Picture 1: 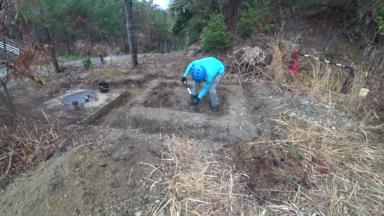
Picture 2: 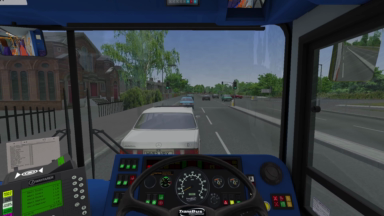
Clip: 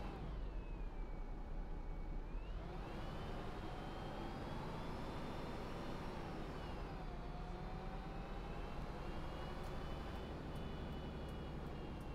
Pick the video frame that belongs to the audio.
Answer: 2